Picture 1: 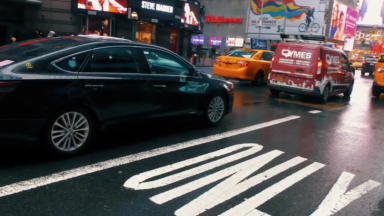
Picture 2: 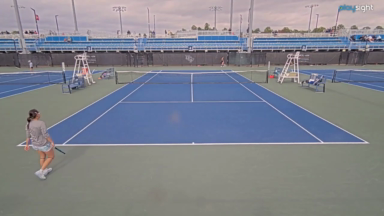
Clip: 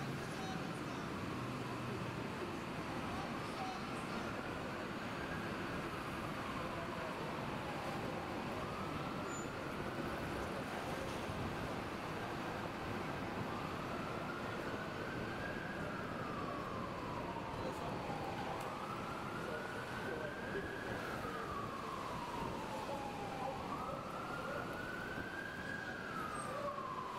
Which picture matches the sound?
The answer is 1